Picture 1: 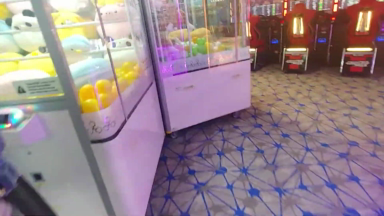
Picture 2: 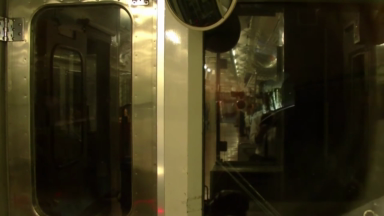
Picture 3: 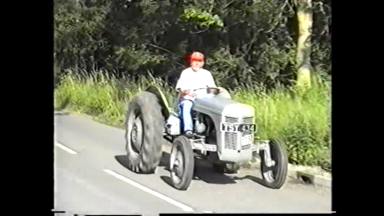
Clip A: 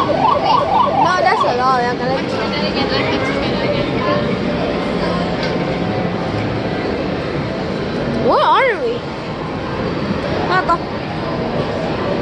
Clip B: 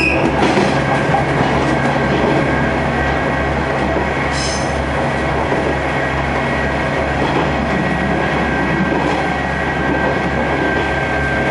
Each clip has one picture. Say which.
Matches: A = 1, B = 2